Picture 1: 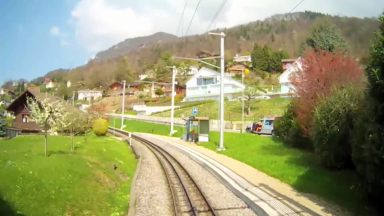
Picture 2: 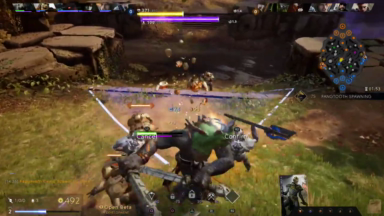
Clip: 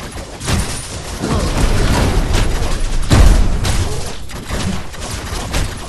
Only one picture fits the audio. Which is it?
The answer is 2